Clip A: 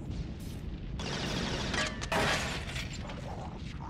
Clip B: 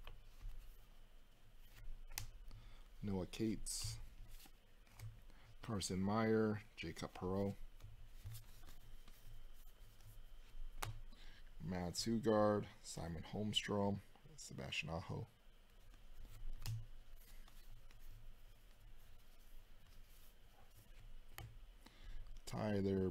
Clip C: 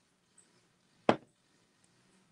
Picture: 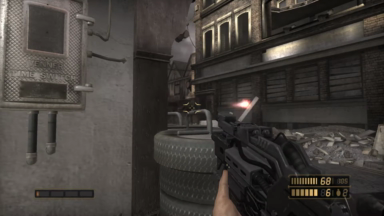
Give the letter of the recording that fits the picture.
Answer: A